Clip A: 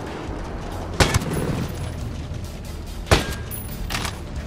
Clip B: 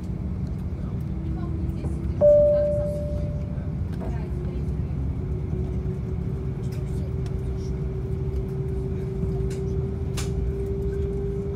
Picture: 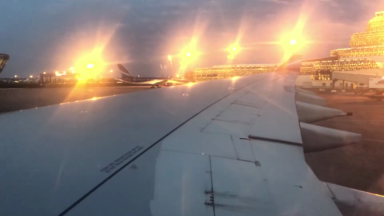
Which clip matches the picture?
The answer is B